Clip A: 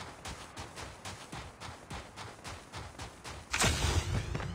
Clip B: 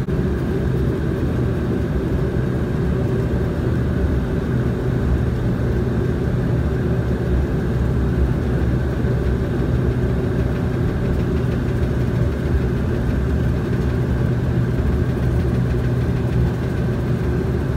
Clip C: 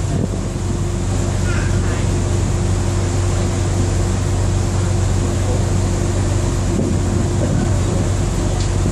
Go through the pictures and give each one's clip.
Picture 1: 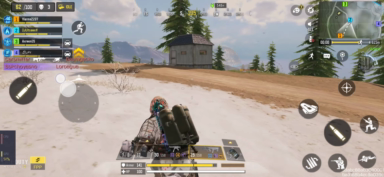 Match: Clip A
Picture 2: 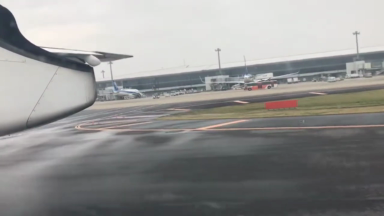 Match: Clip B